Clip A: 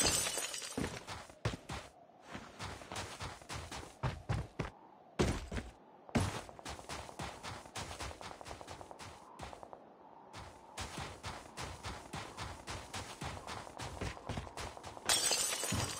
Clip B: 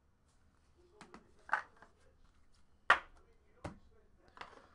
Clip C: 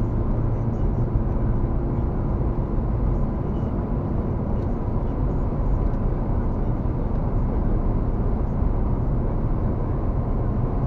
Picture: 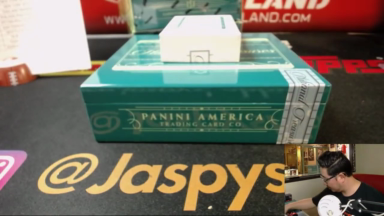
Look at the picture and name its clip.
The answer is B